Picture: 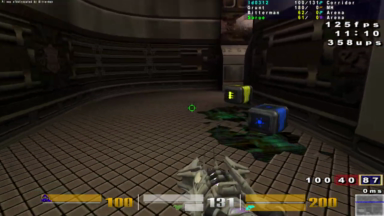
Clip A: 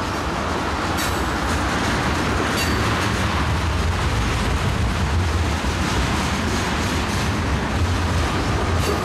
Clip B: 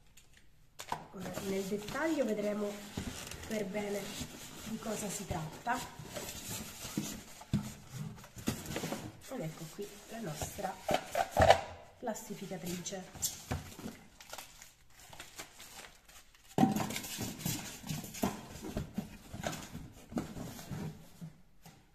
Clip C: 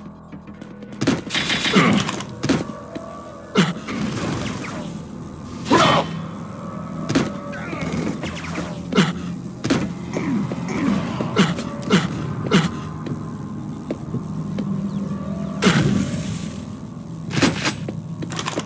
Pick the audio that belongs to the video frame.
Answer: C